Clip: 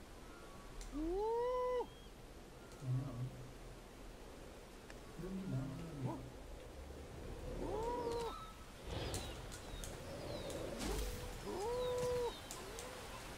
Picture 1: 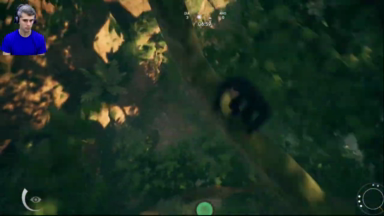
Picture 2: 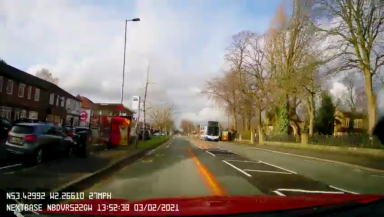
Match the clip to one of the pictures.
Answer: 1